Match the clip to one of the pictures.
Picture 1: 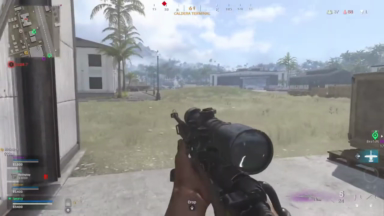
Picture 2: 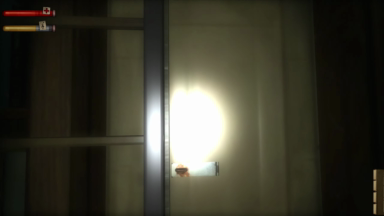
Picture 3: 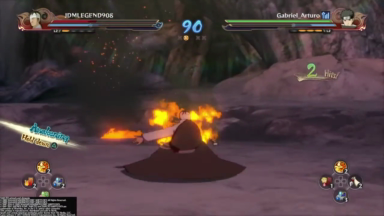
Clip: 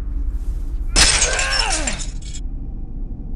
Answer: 2